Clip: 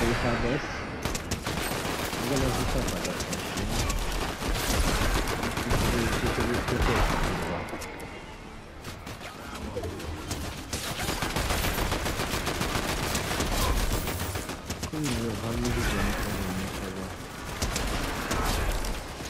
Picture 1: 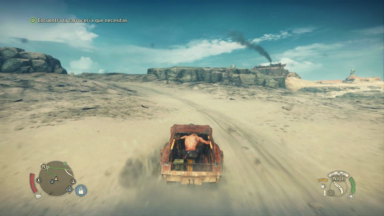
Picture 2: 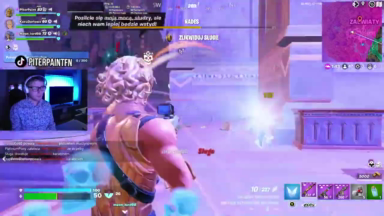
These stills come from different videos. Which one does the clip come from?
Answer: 2